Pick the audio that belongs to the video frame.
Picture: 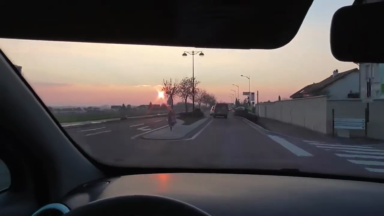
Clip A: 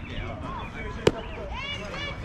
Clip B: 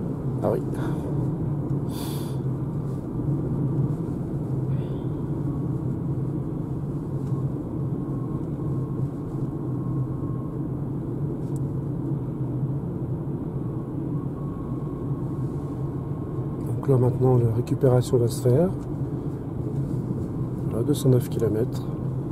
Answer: B